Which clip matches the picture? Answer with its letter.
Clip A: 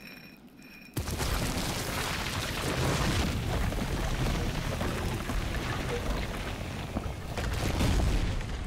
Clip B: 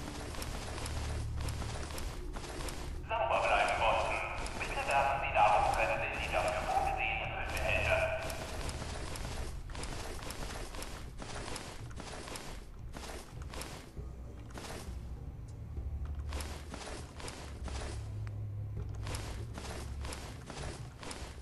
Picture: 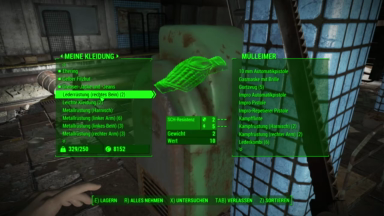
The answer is B